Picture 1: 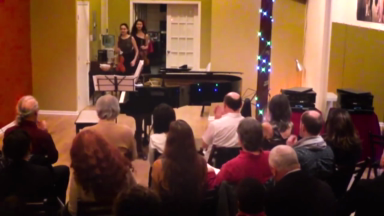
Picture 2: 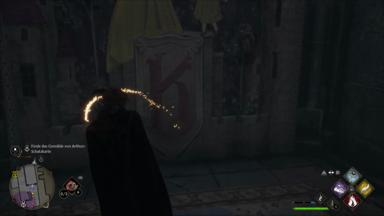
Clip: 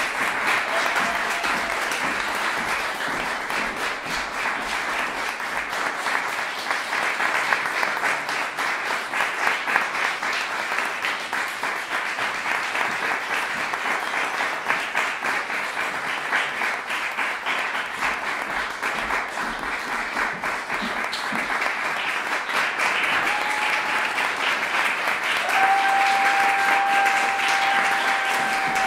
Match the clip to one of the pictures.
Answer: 1